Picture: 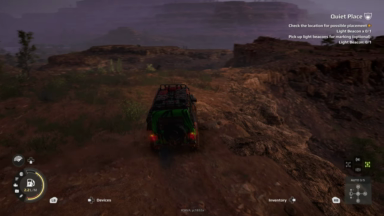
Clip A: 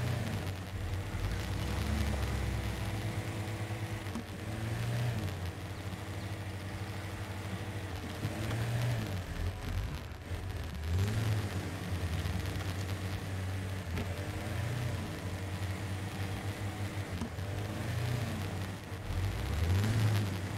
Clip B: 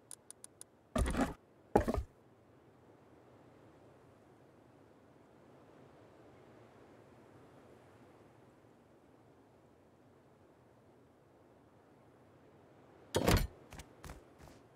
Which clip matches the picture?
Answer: A